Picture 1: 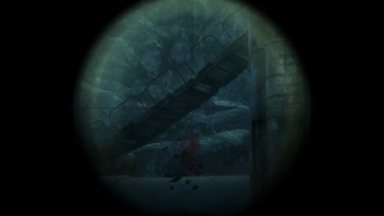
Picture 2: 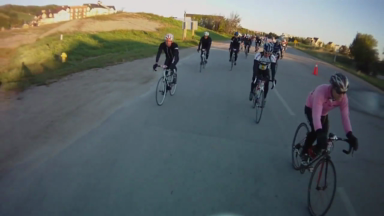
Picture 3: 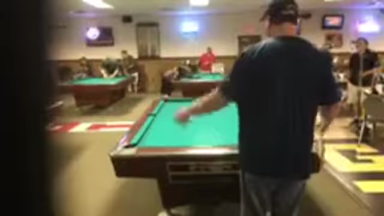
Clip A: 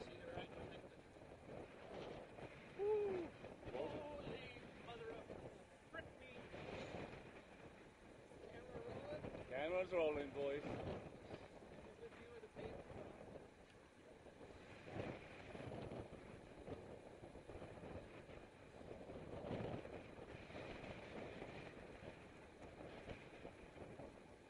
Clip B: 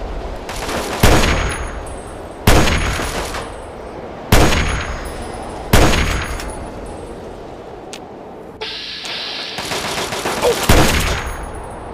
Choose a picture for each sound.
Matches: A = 2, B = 1